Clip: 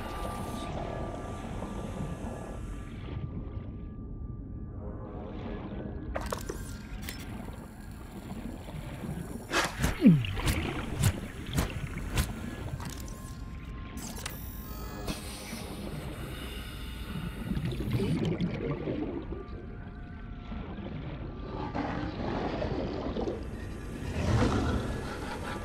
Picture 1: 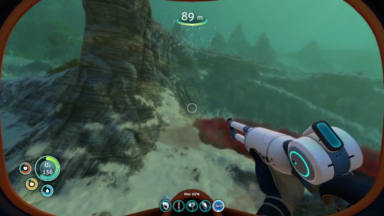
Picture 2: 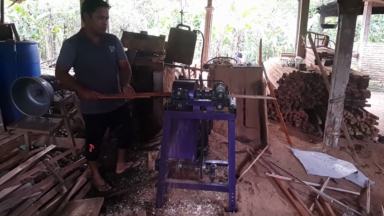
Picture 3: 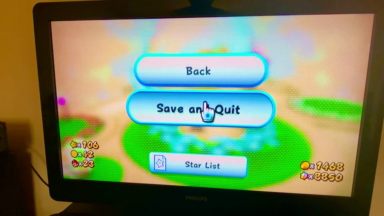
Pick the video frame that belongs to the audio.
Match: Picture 1